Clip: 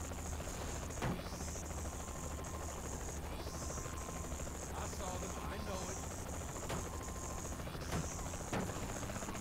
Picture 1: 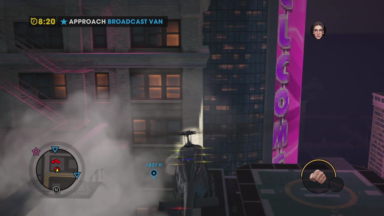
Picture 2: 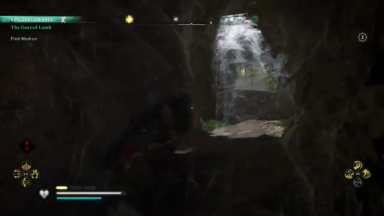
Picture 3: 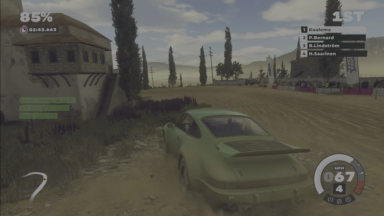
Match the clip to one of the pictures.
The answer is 1